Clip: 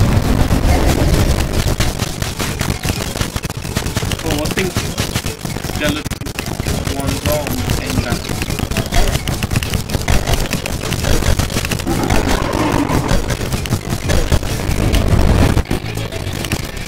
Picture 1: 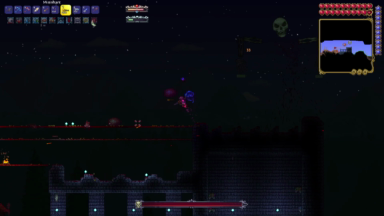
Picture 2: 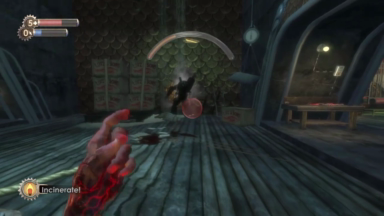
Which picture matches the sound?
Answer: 1